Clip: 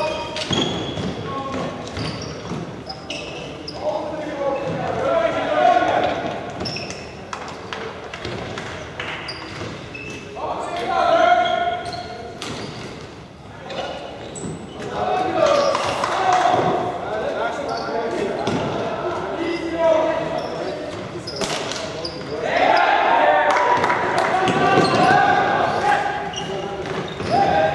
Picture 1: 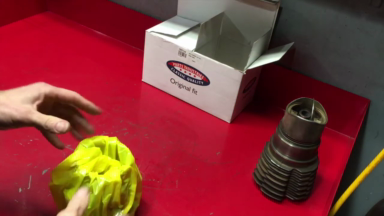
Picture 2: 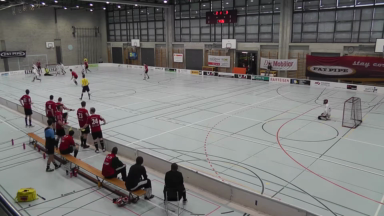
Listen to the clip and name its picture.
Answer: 2